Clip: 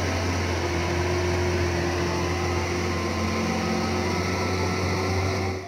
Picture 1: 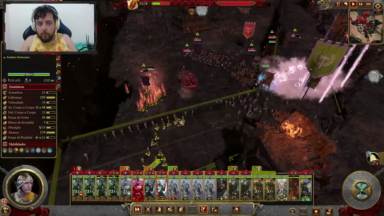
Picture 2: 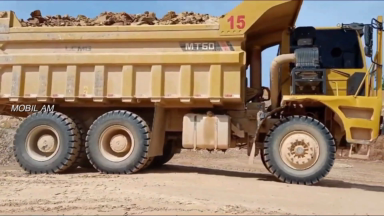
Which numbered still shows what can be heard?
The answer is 2